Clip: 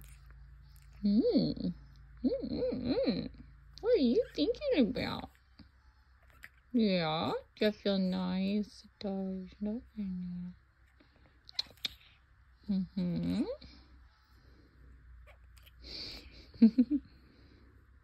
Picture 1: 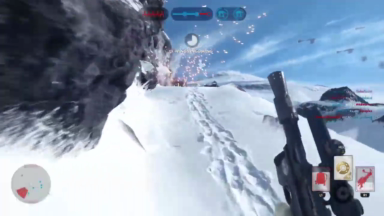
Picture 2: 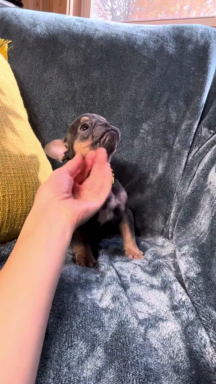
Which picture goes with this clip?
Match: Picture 2